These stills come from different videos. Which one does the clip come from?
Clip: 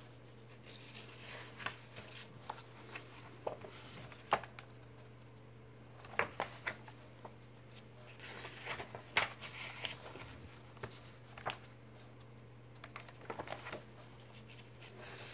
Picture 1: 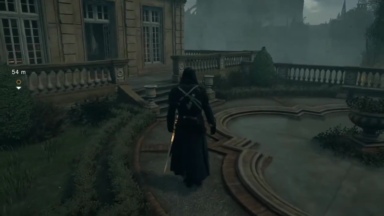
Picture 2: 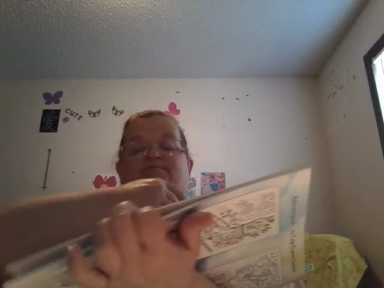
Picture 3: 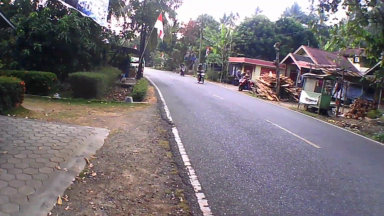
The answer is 2